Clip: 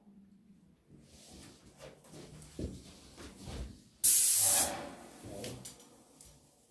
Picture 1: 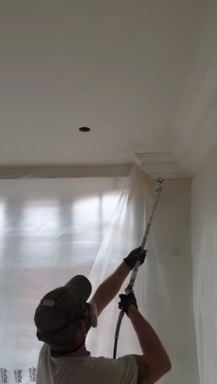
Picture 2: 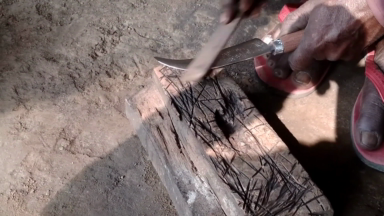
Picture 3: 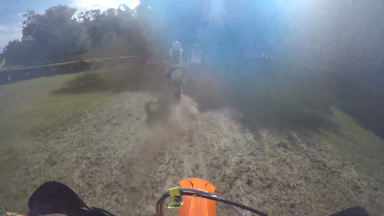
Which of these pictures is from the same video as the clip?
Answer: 1